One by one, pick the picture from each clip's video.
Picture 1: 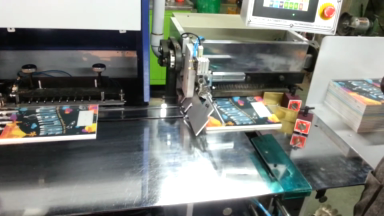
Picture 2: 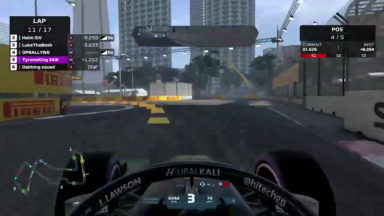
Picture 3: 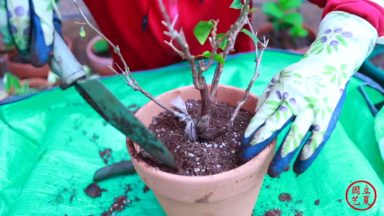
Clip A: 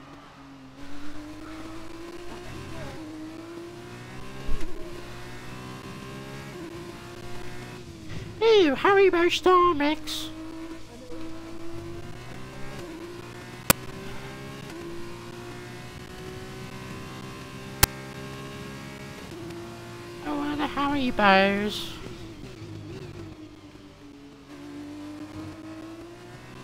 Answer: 2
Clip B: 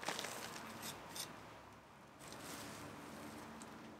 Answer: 3